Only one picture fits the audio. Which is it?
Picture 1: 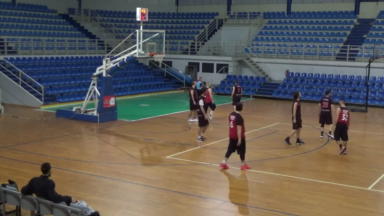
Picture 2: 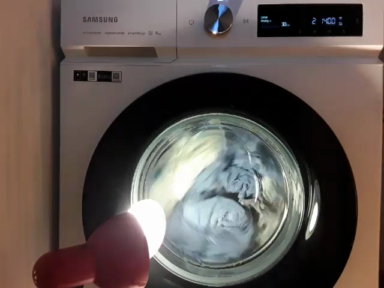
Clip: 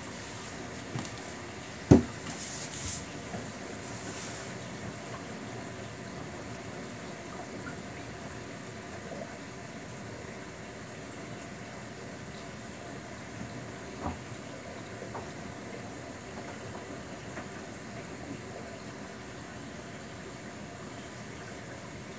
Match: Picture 2